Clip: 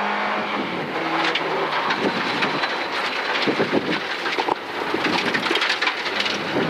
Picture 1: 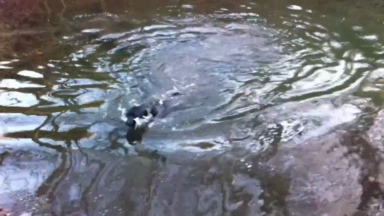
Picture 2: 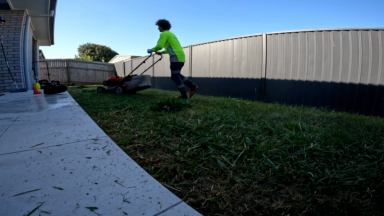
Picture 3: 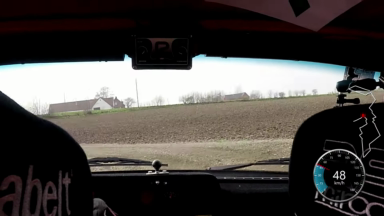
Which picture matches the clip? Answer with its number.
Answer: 3